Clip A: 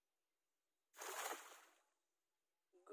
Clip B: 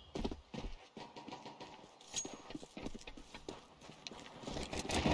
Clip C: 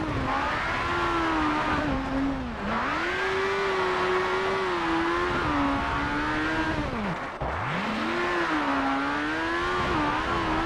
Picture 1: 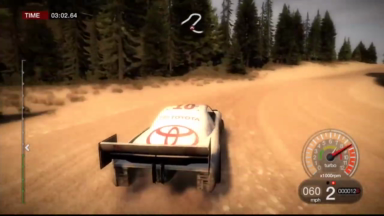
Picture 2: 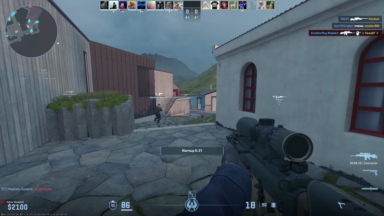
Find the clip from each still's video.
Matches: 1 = C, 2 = B